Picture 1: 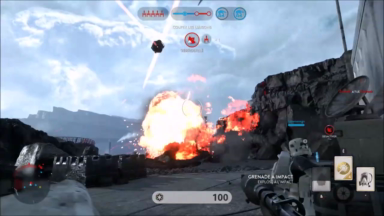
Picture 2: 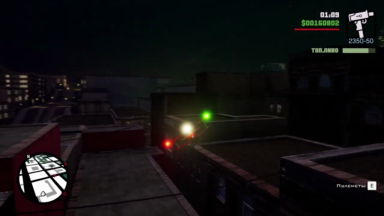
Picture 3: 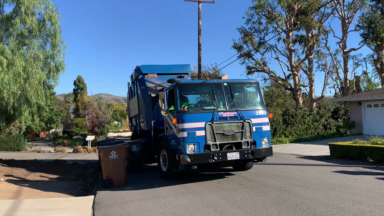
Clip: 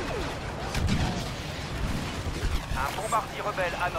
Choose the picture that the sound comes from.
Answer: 1